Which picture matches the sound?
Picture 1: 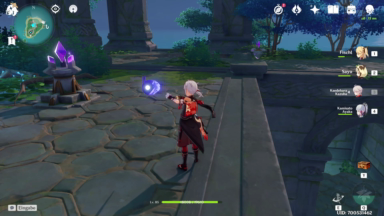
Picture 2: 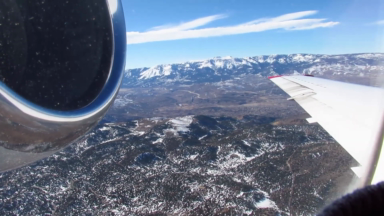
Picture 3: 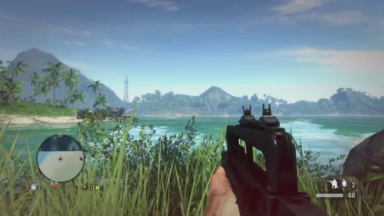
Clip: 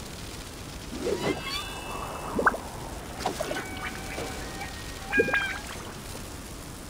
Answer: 1